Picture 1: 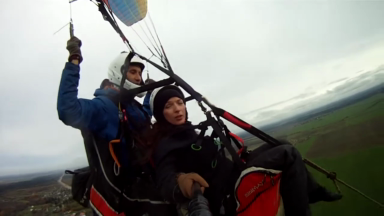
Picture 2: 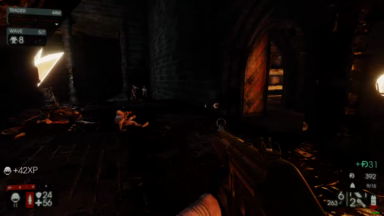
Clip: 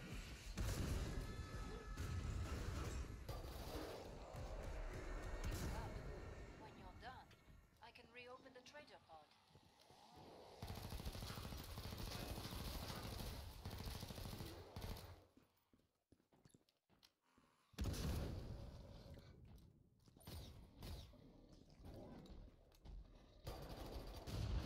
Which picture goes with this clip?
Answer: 2